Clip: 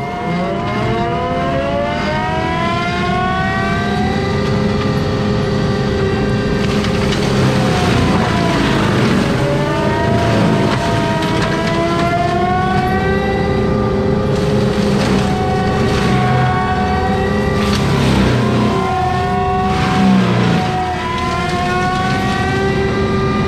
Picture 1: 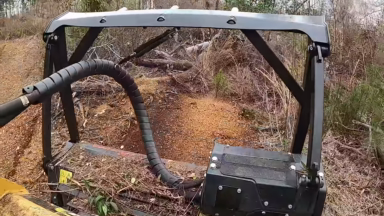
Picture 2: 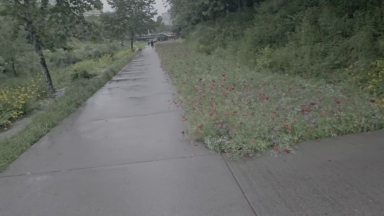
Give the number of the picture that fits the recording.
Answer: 1